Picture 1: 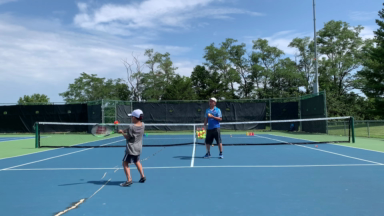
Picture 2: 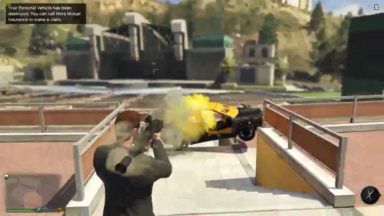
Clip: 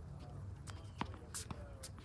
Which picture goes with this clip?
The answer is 1